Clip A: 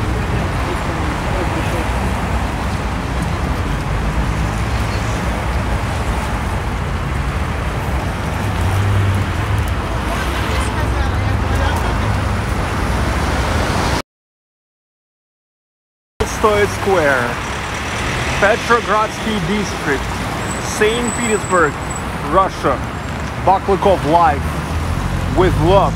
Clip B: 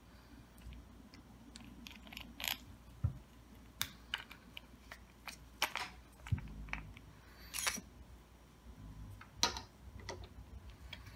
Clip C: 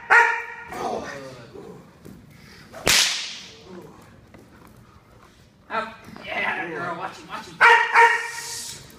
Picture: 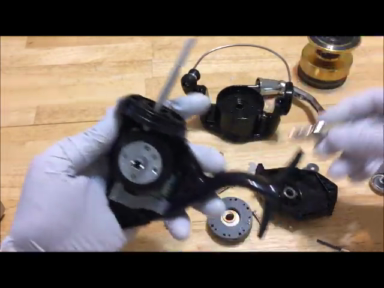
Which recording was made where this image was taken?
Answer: B